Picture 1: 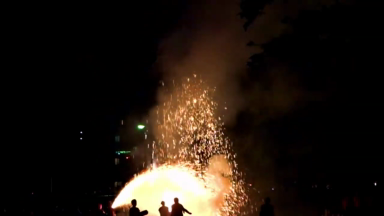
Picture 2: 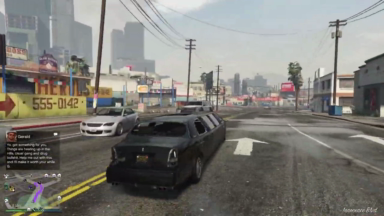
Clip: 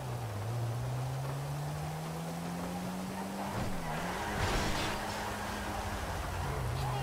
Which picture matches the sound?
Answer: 2